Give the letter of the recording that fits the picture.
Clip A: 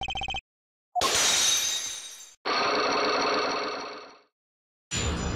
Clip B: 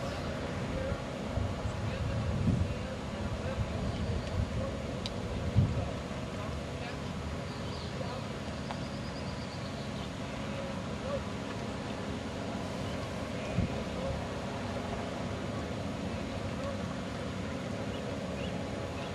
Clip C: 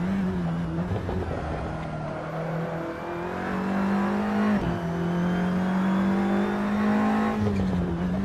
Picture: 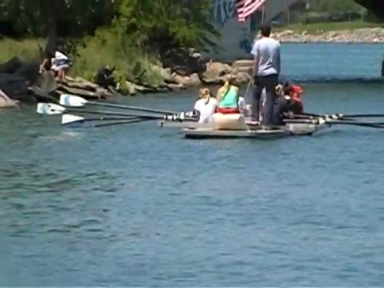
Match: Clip B